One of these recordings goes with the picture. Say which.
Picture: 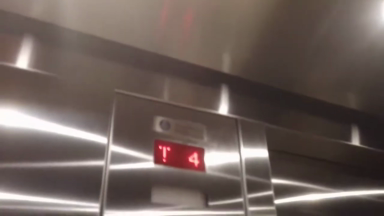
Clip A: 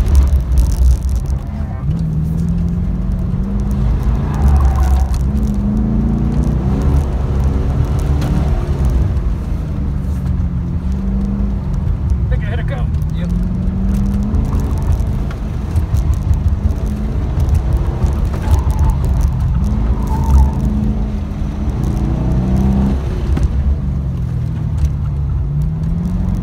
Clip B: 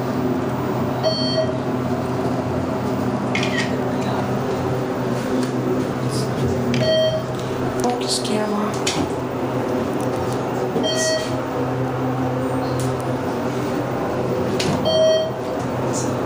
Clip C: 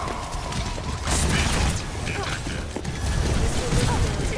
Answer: B